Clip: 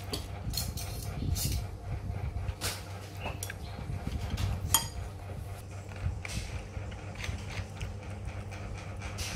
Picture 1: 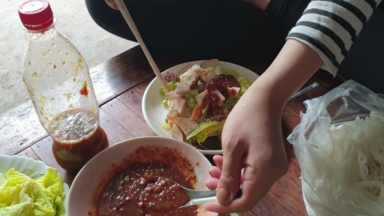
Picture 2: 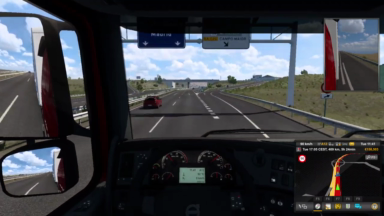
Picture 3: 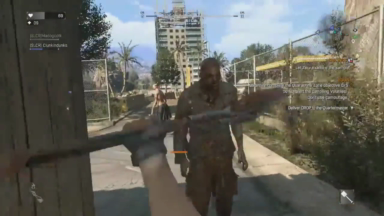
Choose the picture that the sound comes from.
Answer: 1